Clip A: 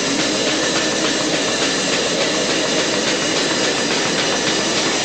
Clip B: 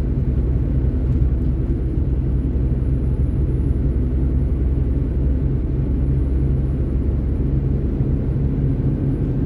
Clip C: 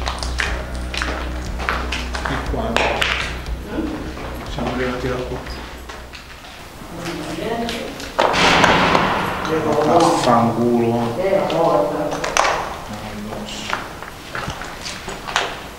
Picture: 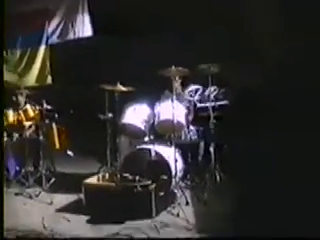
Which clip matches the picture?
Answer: A